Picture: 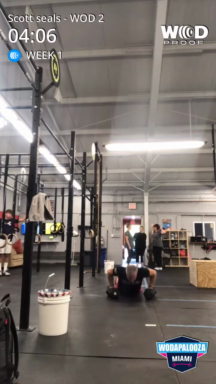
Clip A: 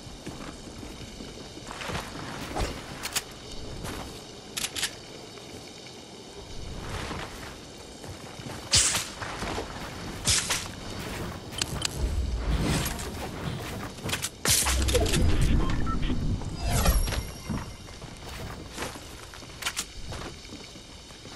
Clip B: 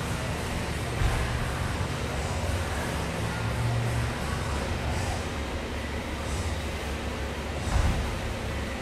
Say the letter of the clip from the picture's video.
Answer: B